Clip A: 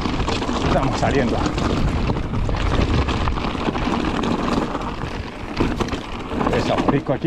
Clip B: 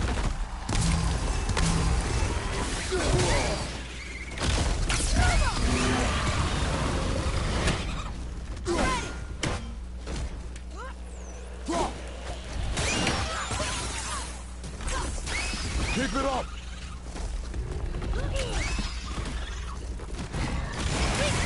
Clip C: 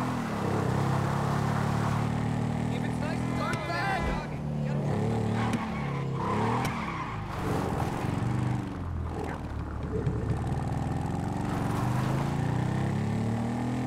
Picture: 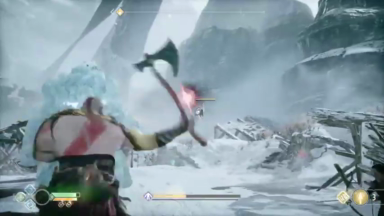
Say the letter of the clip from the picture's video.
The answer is B